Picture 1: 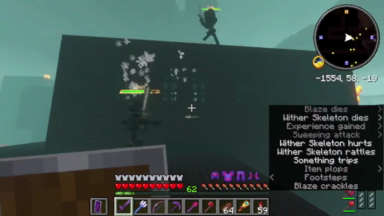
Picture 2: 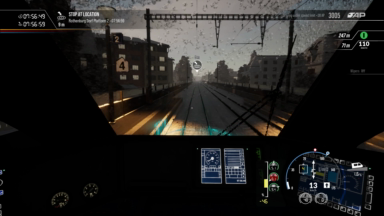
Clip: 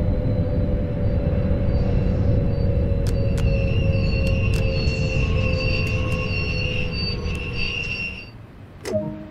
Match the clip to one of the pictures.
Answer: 2